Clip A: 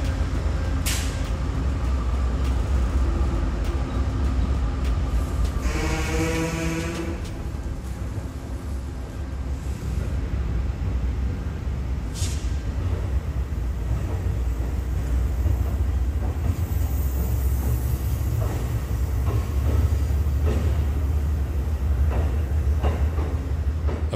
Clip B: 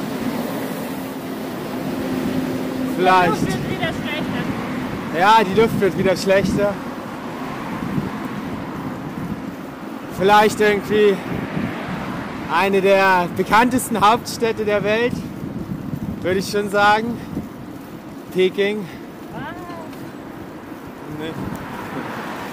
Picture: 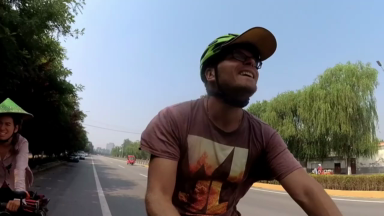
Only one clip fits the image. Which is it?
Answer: B